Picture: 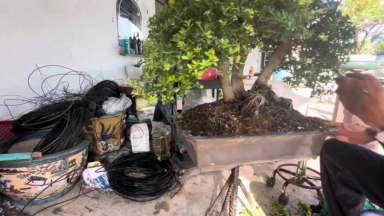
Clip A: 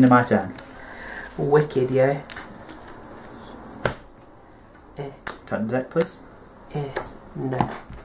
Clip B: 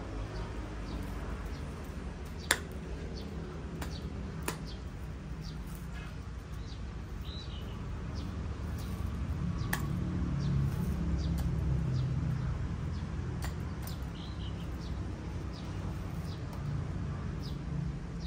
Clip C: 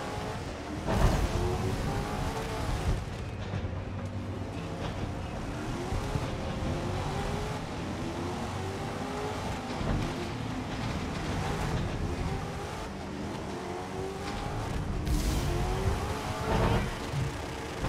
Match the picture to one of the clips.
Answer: B